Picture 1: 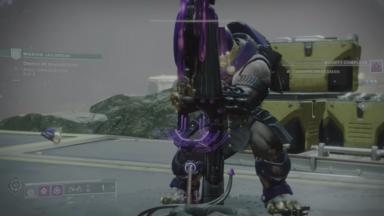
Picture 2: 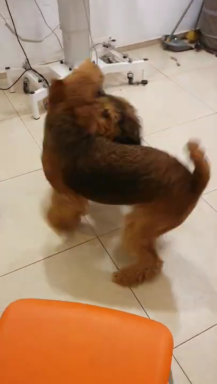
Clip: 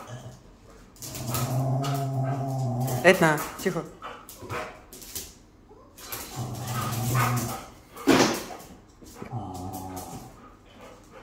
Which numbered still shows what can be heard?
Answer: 2